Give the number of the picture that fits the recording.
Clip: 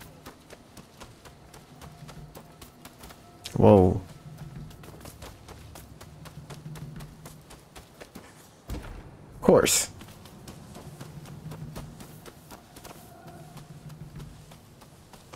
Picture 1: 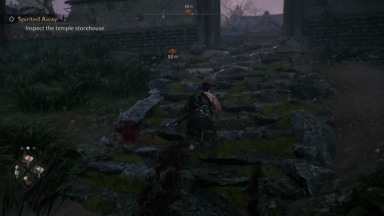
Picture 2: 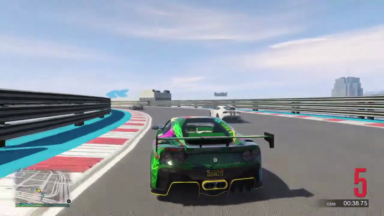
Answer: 1